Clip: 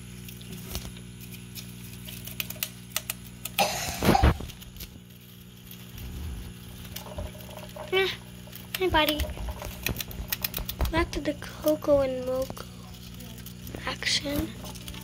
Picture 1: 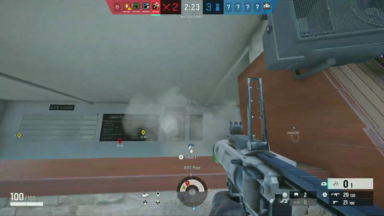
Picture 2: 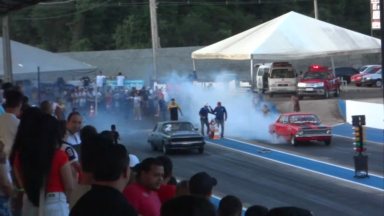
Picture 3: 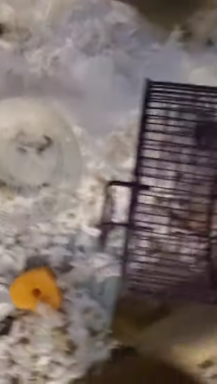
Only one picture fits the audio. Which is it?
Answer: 3